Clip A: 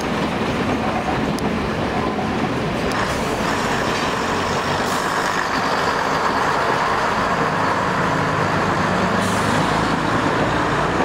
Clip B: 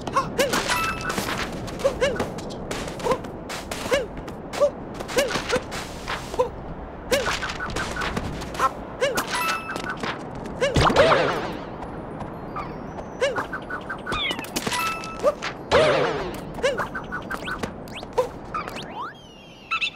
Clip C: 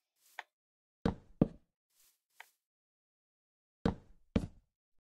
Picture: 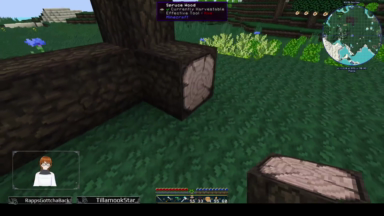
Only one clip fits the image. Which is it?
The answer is C